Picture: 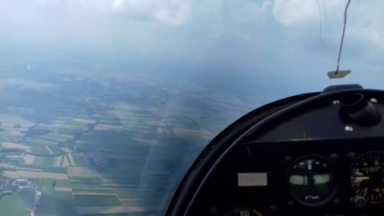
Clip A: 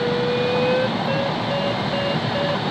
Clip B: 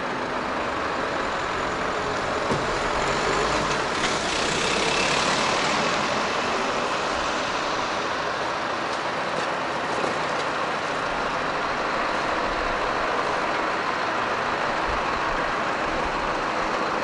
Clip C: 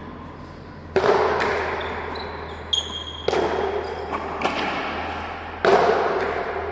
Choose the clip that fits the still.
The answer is A